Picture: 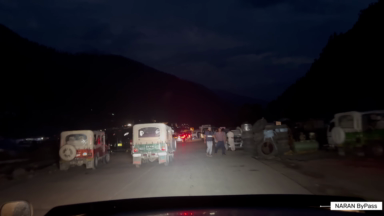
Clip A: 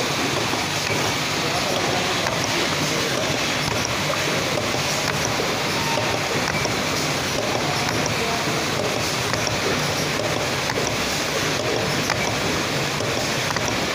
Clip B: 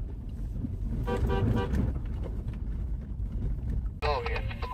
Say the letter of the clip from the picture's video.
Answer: B